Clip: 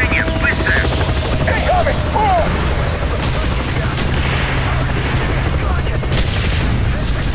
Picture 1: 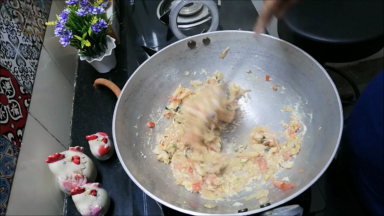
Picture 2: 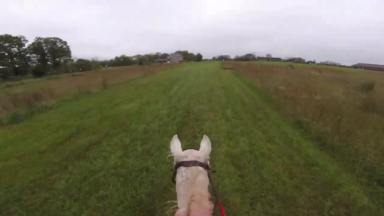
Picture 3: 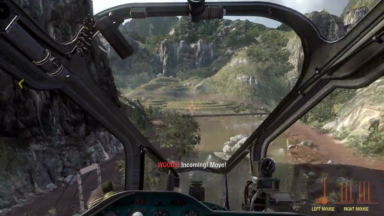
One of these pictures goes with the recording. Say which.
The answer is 3